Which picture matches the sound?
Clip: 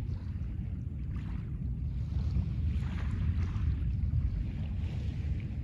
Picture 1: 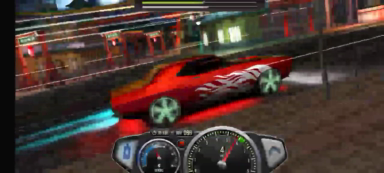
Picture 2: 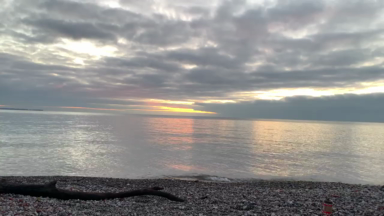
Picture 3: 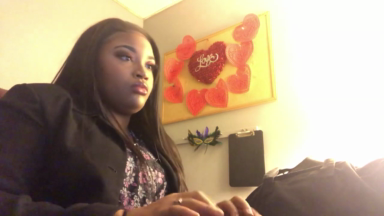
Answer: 2